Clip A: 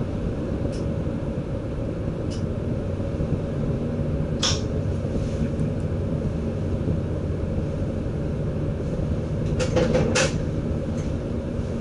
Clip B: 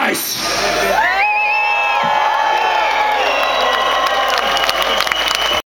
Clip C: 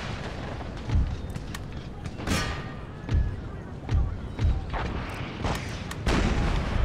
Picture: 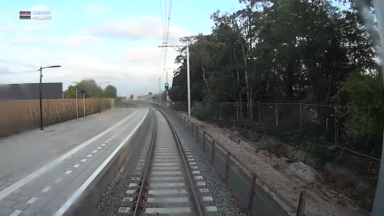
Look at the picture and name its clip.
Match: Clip A